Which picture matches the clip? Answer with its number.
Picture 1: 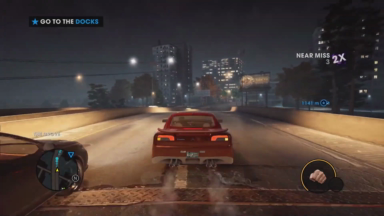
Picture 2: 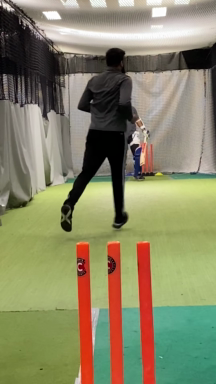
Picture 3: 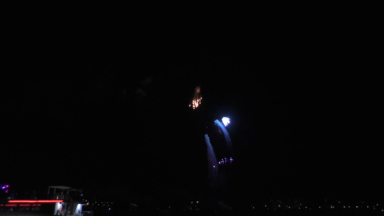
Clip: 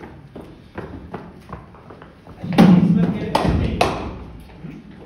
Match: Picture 2